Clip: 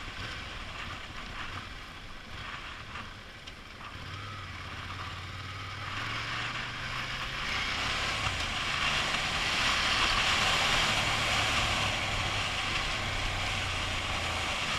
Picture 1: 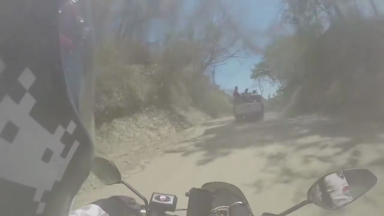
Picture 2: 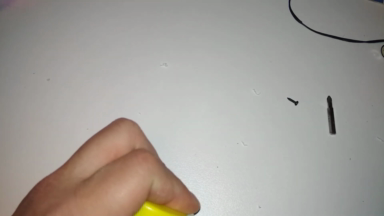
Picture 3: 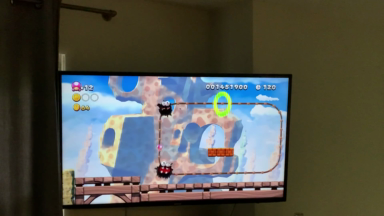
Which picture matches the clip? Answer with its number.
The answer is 1